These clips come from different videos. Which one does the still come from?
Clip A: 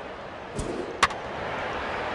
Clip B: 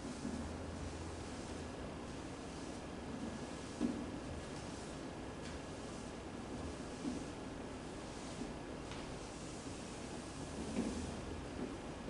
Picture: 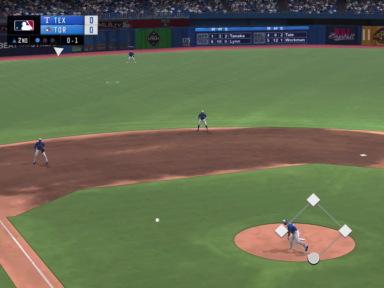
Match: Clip A